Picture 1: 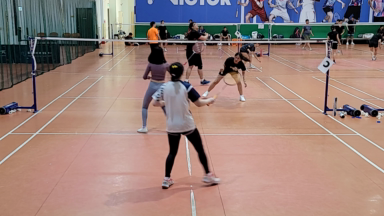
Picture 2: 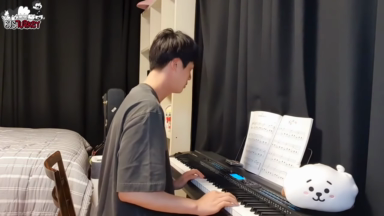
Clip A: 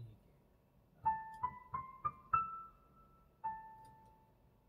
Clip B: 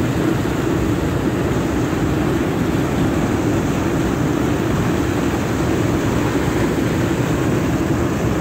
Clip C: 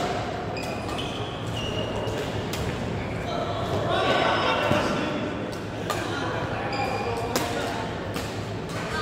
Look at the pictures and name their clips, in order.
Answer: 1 C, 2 A